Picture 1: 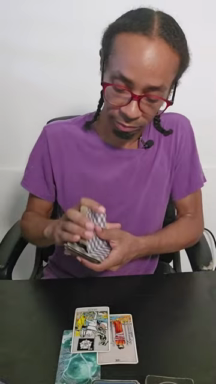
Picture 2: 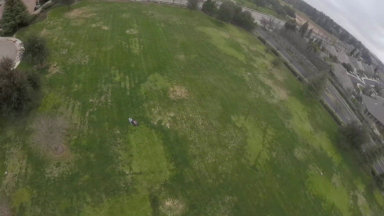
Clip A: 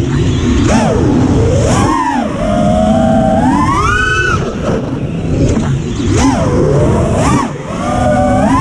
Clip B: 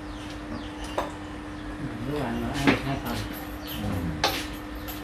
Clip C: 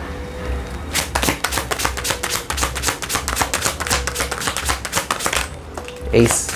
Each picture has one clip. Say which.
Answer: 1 C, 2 A